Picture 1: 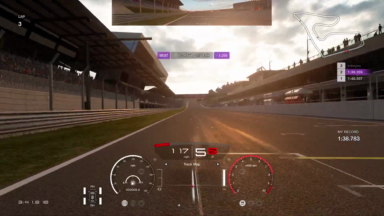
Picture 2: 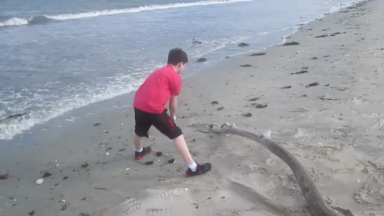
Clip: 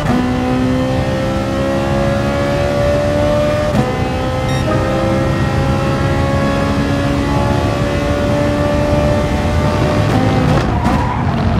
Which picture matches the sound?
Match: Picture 1